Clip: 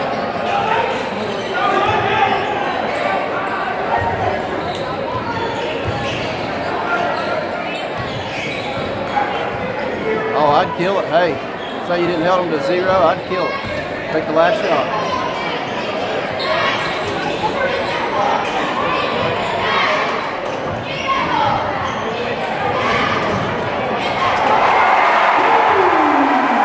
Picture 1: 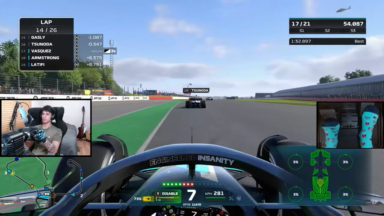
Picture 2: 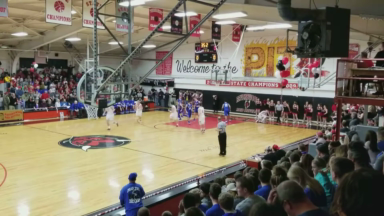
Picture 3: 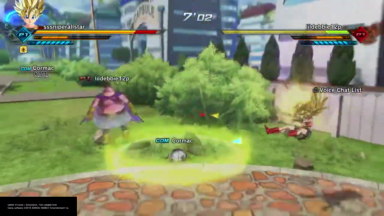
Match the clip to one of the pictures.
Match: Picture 2